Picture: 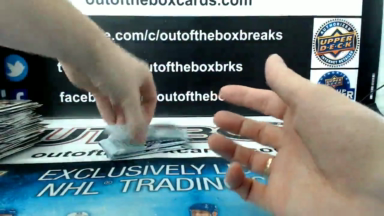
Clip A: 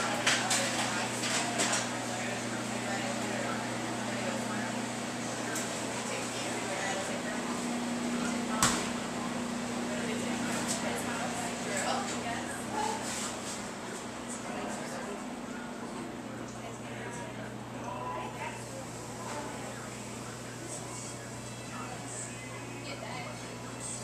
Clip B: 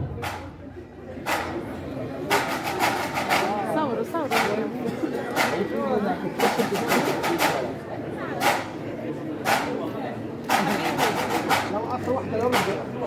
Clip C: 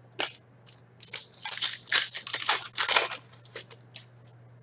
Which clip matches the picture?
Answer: C